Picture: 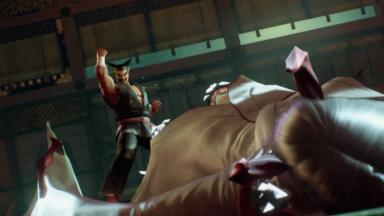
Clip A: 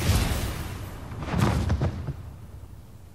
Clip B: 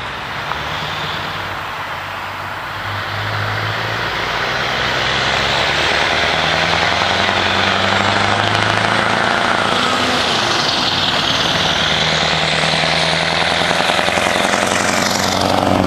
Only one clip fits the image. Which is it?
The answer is A